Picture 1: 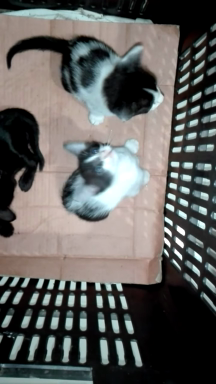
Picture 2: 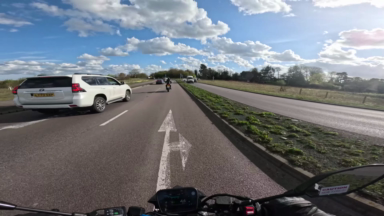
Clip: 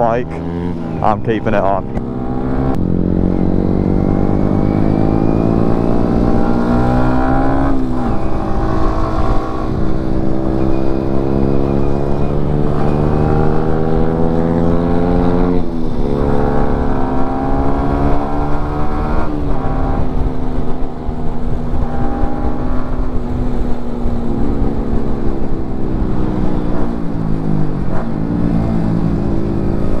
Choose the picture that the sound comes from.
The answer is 2